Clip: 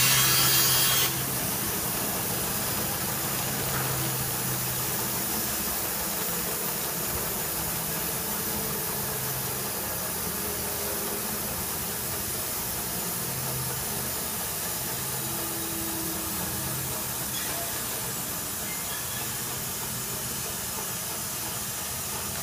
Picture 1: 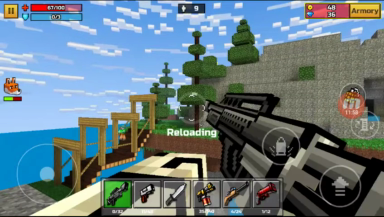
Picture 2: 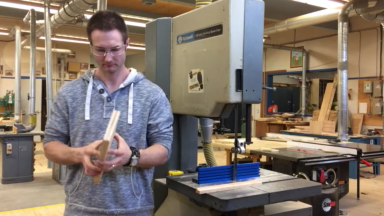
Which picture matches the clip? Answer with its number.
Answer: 2